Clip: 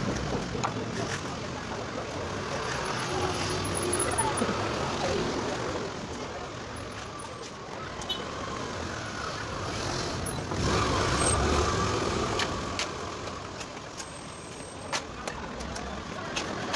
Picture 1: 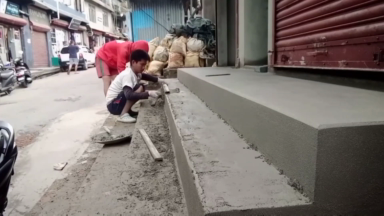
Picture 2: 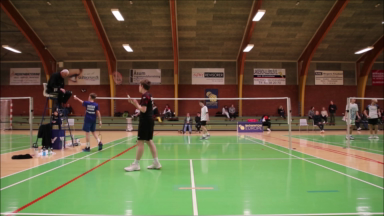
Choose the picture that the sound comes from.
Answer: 1